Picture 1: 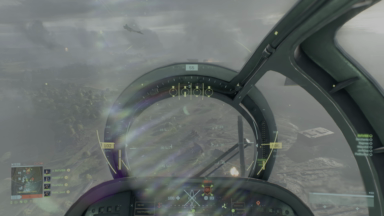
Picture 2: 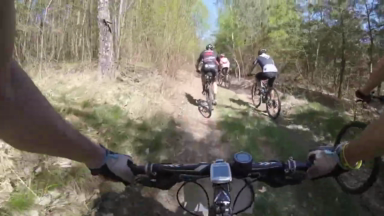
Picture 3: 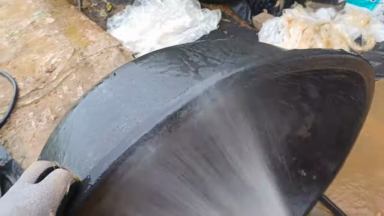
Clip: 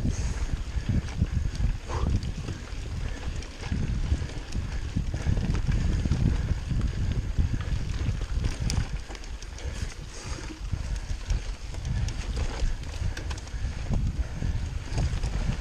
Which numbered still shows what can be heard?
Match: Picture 2